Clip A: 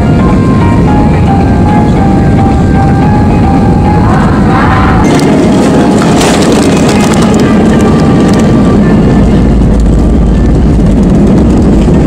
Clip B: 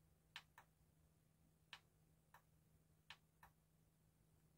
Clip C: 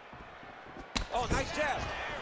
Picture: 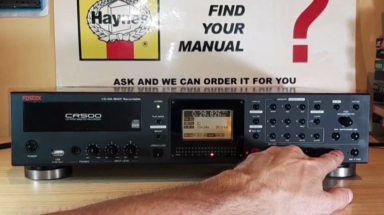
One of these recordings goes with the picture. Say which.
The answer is B